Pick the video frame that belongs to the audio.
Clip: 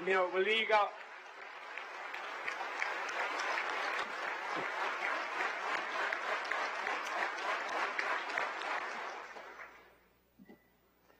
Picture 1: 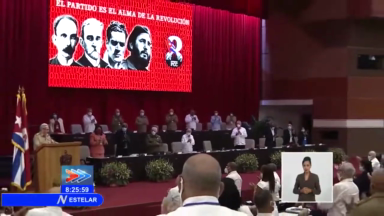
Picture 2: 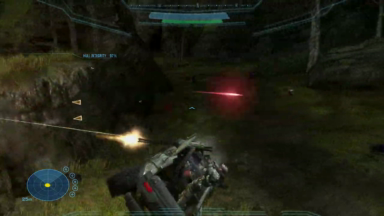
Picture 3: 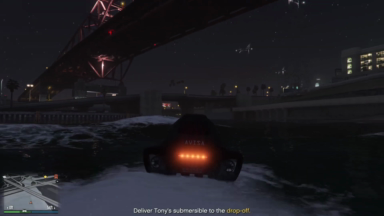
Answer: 1